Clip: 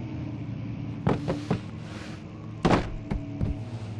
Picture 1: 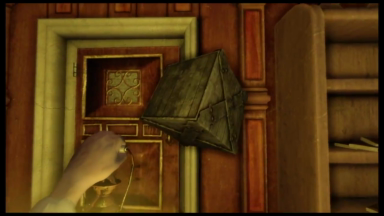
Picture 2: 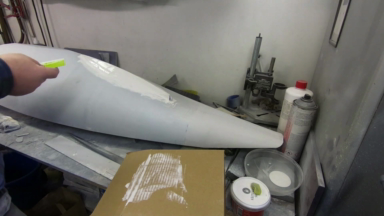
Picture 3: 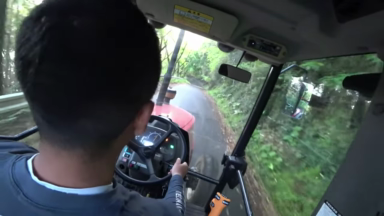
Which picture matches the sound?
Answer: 1